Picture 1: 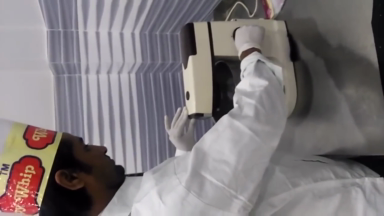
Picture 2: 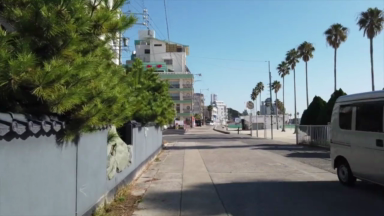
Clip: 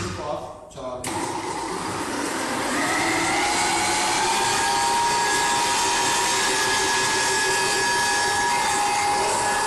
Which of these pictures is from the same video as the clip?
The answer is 1